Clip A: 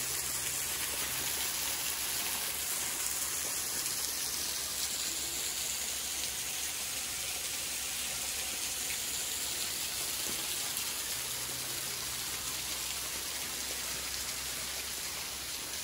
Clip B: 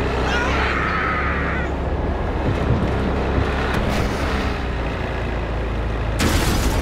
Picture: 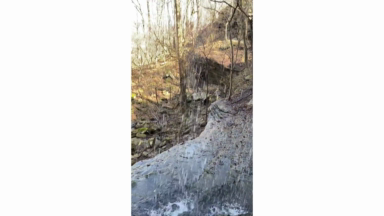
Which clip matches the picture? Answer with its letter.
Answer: A